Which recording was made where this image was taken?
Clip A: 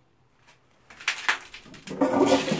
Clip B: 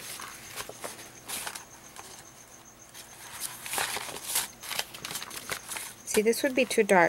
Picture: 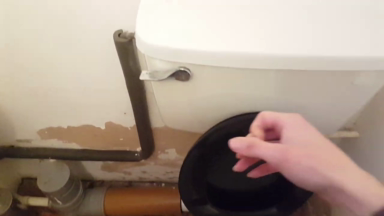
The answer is A